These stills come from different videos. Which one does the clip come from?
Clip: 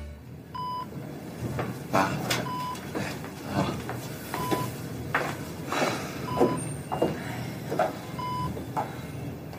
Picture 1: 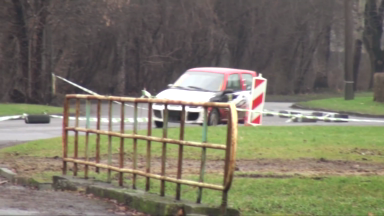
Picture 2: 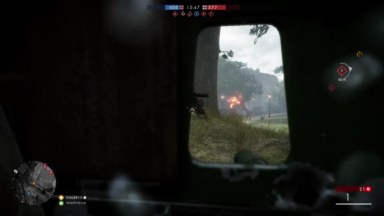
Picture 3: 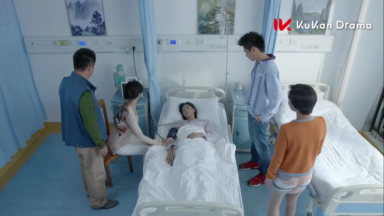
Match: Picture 3